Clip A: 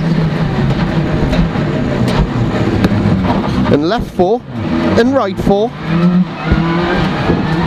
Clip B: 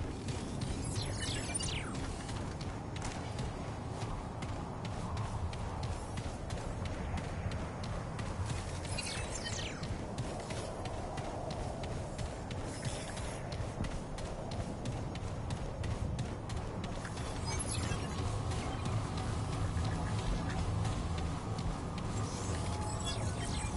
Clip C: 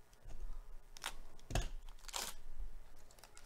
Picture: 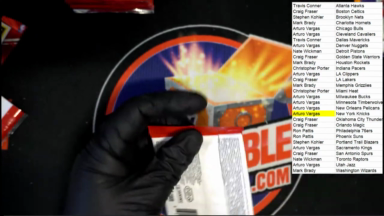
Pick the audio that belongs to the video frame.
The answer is C